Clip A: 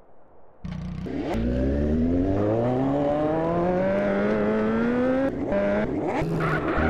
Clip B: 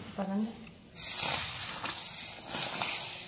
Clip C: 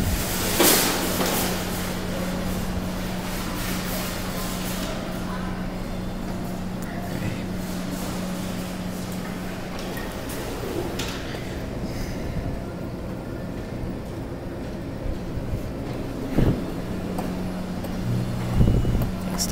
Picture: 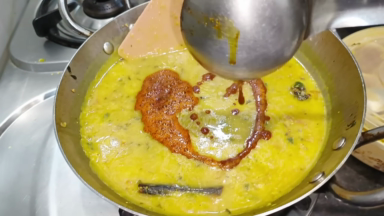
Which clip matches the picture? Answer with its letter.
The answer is B